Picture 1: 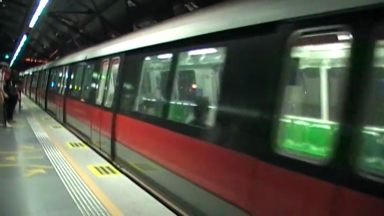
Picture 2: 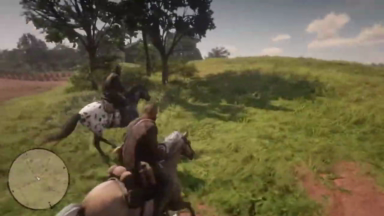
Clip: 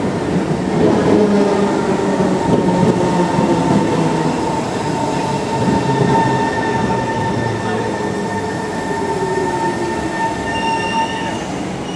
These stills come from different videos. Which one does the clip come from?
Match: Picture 1